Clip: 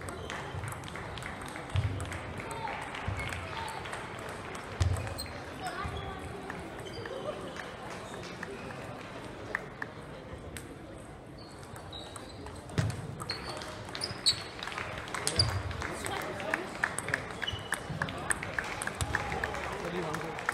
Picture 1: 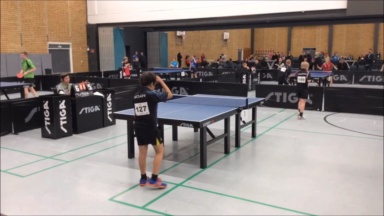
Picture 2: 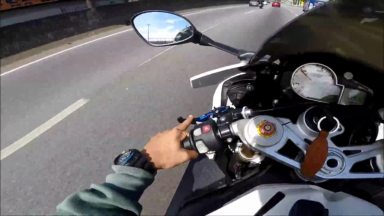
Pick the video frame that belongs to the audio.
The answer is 1